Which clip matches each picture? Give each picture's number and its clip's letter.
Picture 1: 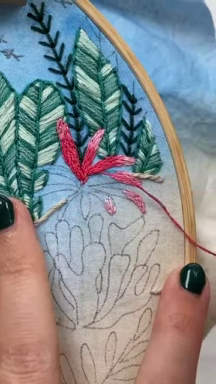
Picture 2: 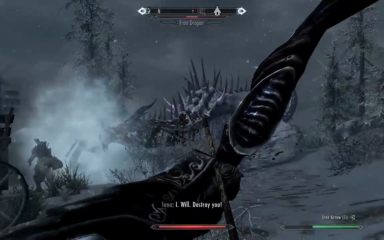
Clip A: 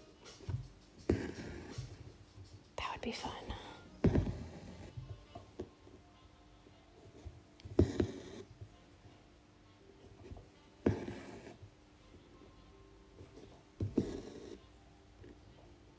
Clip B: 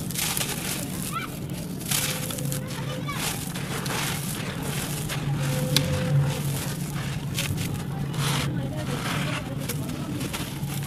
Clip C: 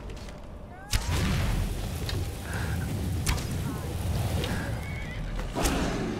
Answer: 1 A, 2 C